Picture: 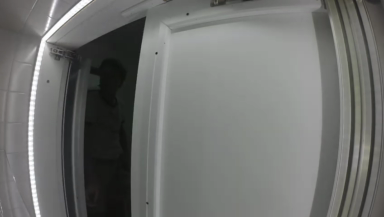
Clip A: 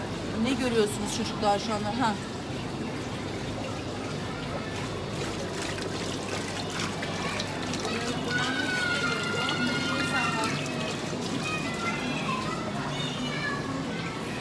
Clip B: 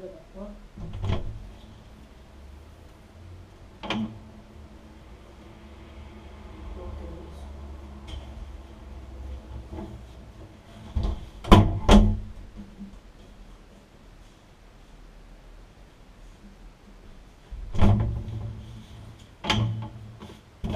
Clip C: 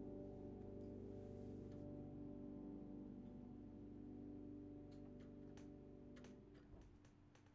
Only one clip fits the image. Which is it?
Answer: B